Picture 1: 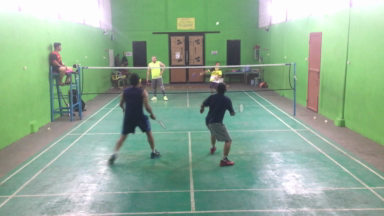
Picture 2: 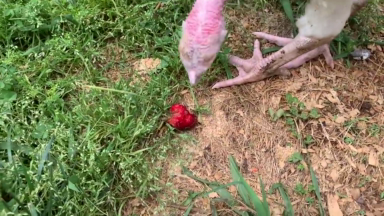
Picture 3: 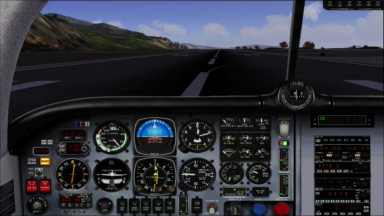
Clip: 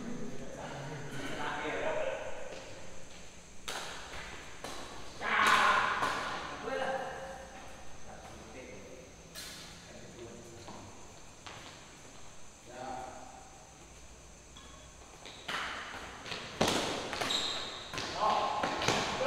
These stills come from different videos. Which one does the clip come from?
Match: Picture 1